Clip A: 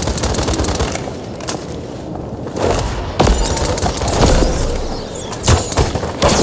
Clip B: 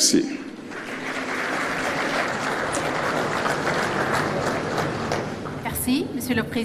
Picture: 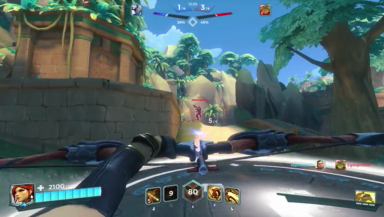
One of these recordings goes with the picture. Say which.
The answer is A